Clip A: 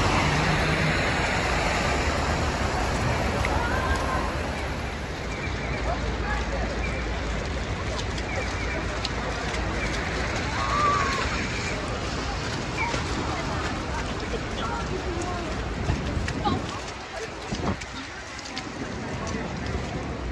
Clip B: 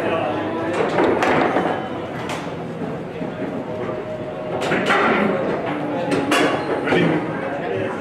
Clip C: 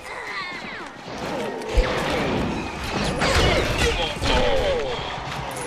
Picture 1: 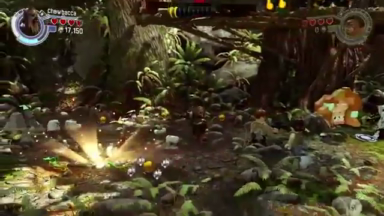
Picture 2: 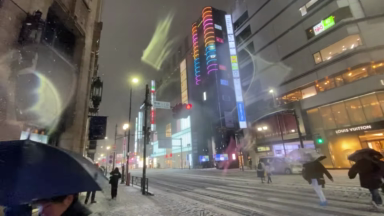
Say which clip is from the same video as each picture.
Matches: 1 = C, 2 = A